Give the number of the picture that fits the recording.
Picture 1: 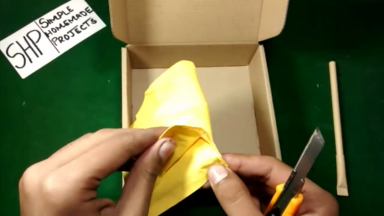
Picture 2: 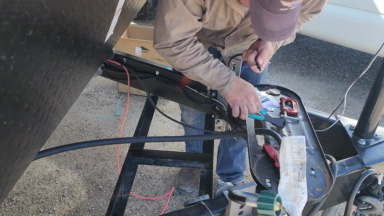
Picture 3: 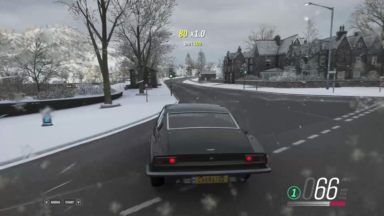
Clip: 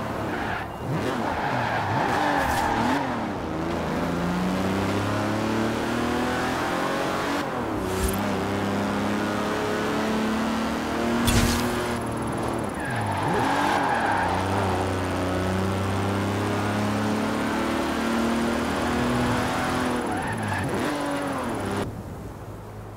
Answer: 3